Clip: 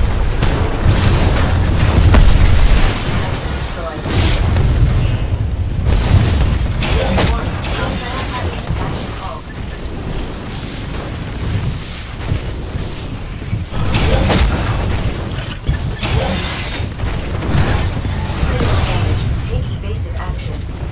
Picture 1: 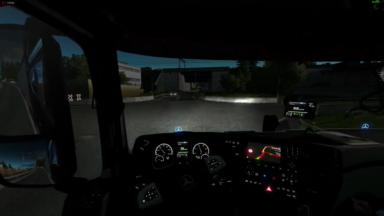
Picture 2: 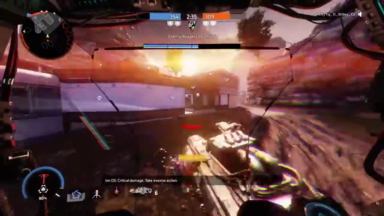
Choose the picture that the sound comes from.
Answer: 2